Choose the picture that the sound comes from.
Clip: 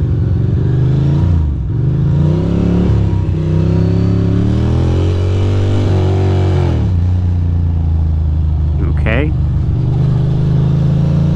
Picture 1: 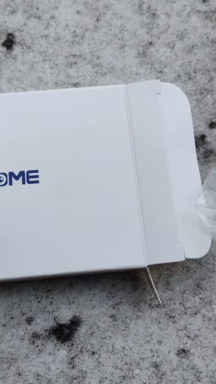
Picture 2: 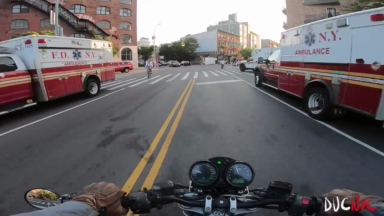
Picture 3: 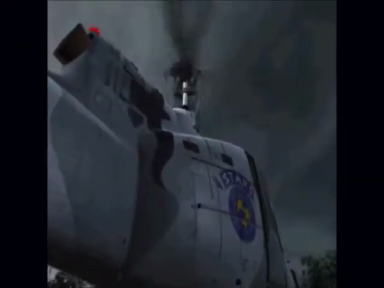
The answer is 2